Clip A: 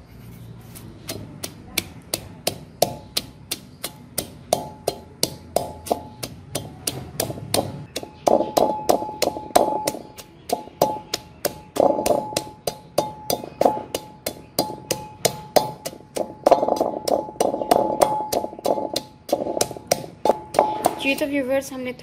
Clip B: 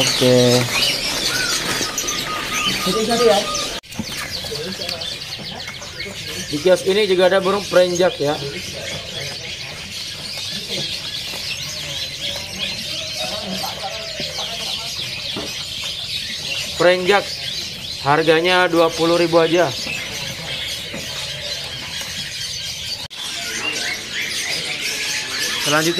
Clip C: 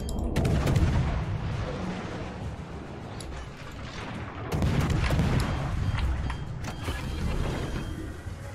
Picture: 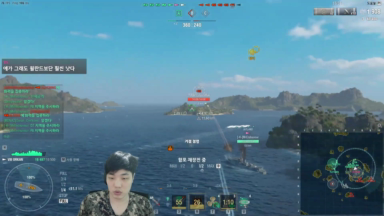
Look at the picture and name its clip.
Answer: C